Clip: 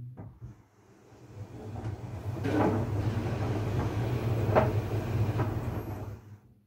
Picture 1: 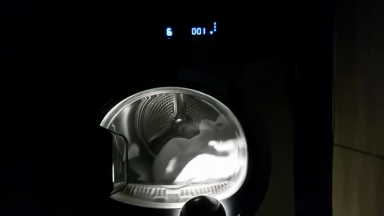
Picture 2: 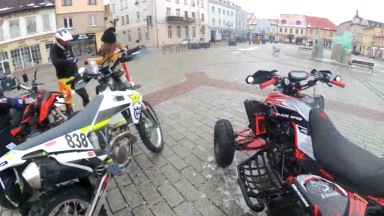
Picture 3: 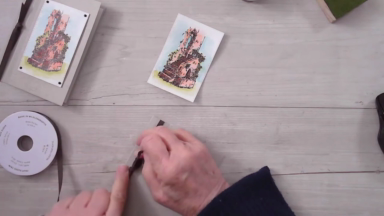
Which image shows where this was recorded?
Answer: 1